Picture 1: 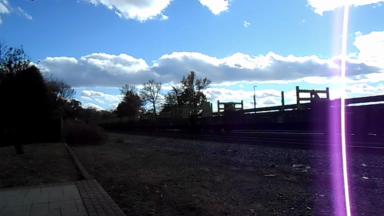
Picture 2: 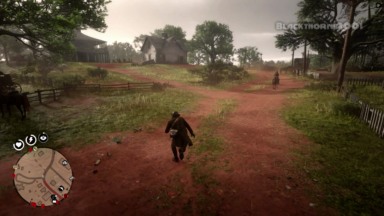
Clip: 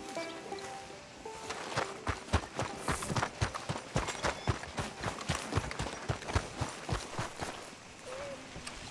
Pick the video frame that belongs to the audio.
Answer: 2